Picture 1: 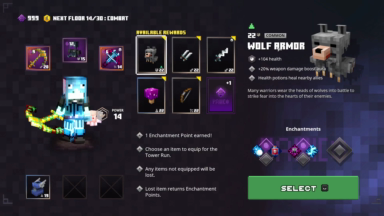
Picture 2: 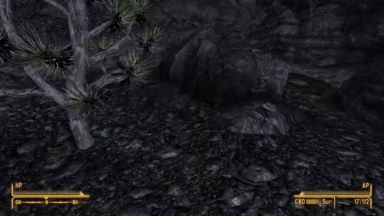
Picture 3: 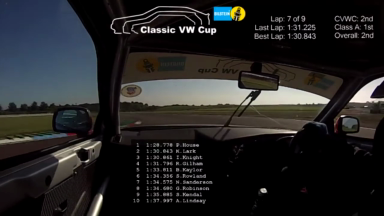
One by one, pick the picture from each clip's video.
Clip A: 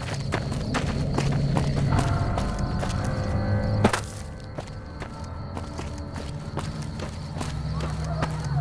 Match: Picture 2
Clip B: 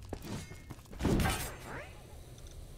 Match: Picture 1